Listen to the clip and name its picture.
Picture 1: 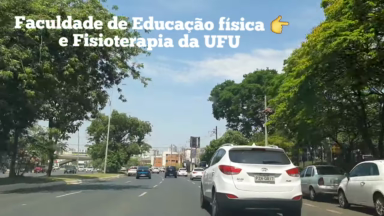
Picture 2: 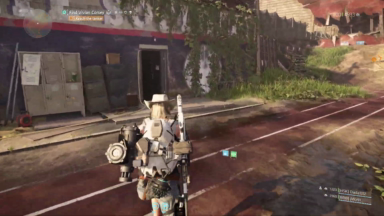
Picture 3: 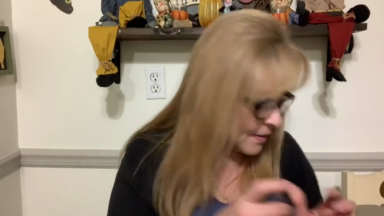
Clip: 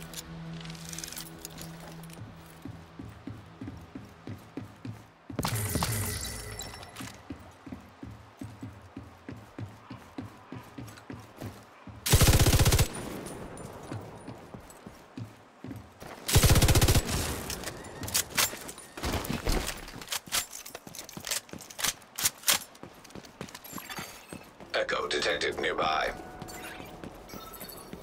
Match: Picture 2